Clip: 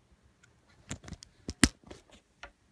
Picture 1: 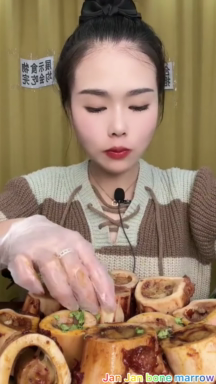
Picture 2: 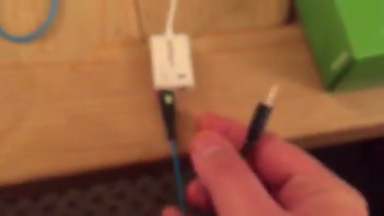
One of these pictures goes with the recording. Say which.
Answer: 2